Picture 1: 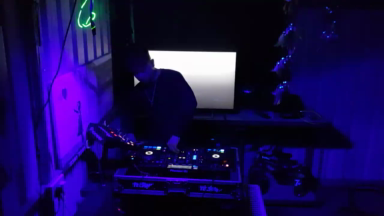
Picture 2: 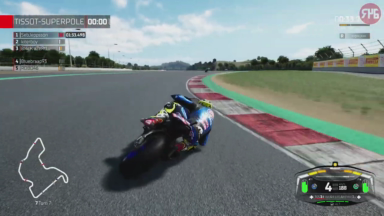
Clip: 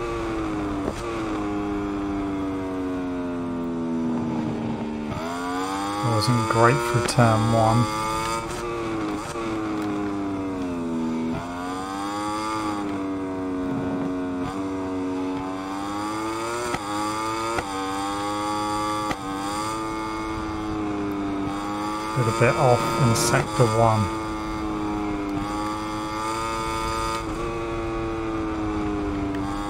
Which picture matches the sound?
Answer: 2